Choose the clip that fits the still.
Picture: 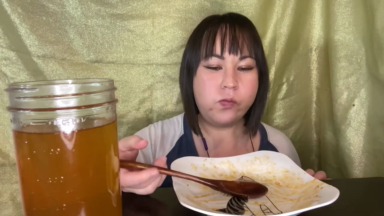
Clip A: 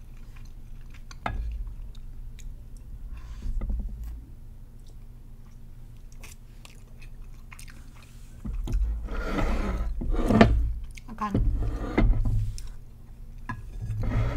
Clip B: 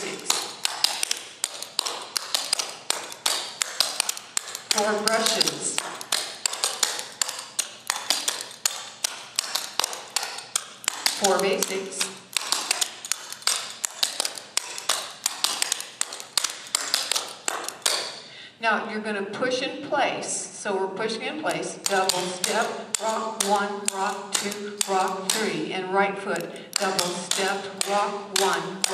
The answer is A